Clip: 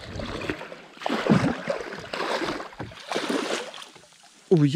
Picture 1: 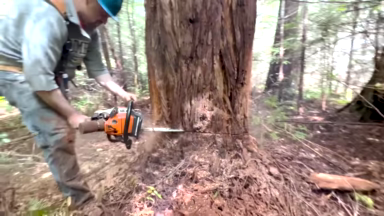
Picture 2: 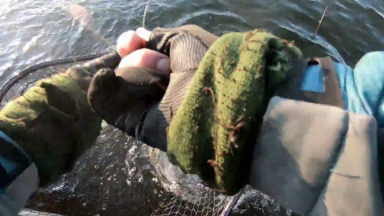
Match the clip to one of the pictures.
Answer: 2